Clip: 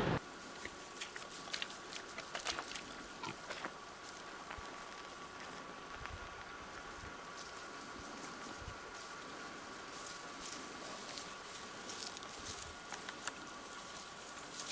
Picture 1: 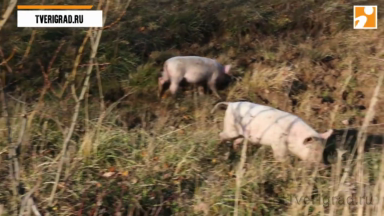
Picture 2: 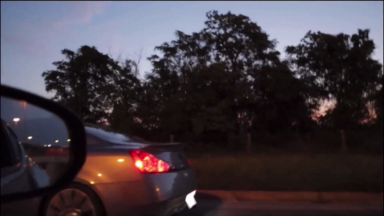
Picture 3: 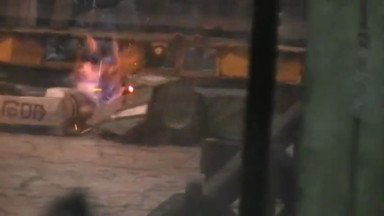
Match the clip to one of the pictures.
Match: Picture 1